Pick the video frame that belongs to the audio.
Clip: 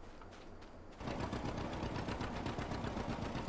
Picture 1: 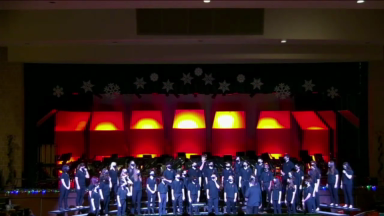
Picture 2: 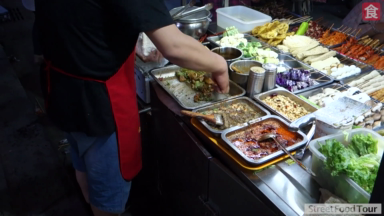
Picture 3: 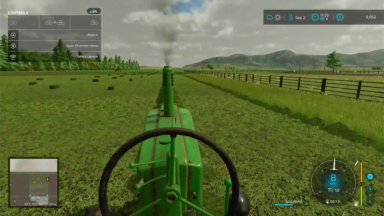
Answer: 3